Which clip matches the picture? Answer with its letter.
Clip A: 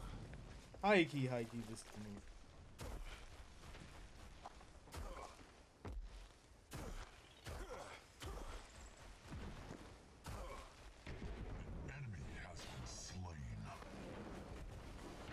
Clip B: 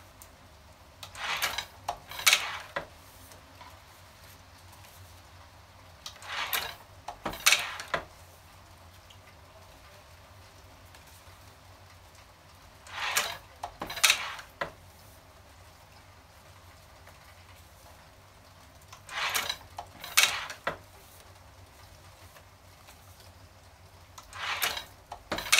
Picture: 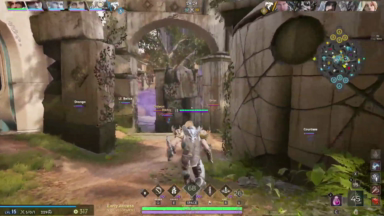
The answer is A